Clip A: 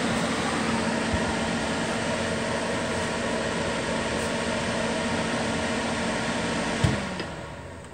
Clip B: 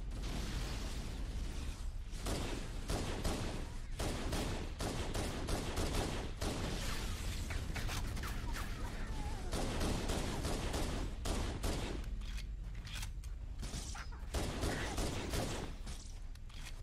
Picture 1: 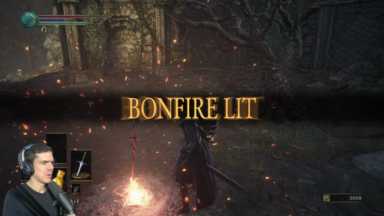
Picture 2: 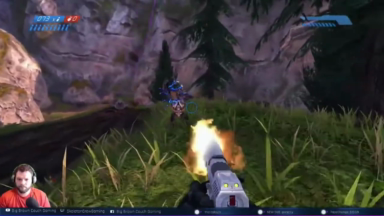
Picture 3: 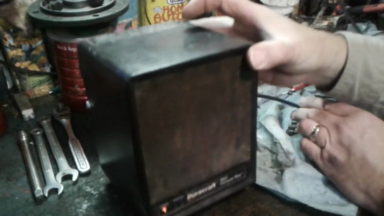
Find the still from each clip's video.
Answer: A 3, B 2